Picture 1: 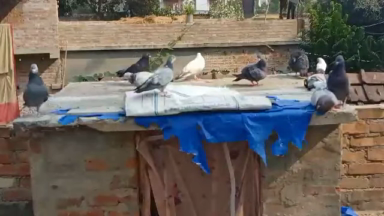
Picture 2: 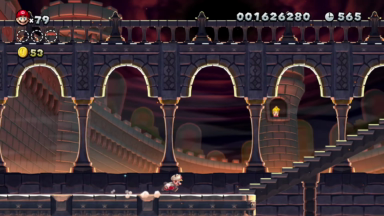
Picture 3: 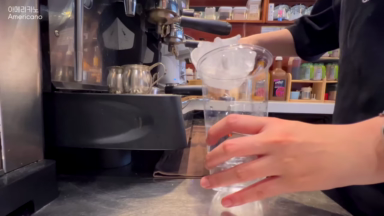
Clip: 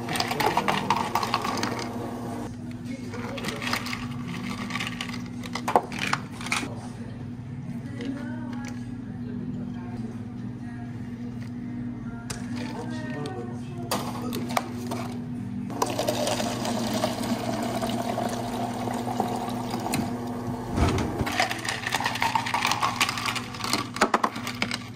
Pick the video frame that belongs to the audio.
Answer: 3